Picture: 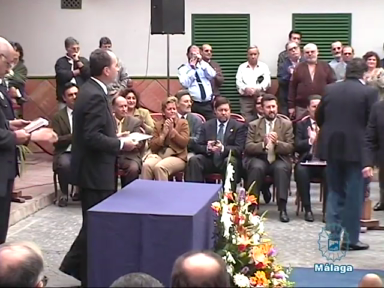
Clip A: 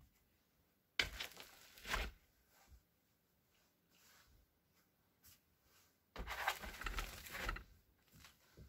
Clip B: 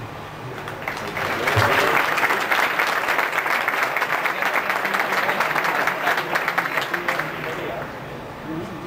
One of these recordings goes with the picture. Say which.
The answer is B